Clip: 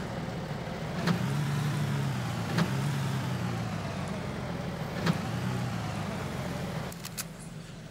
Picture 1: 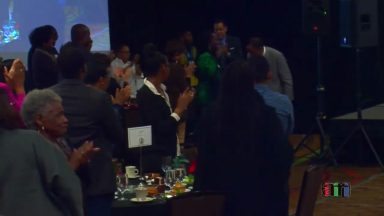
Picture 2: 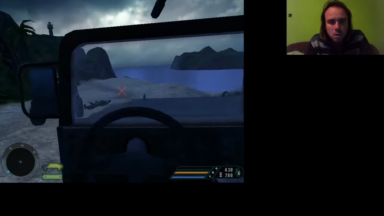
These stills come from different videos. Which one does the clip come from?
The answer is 2